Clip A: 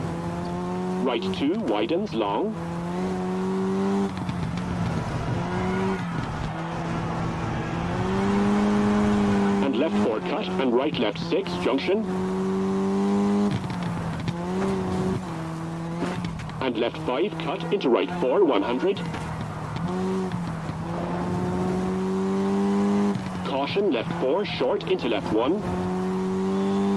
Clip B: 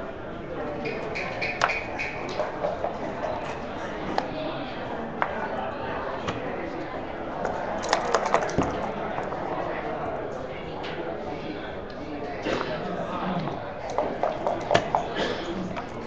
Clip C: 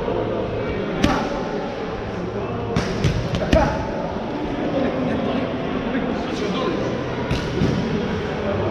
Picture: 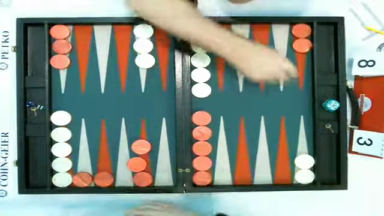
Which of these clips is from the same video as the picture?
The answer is B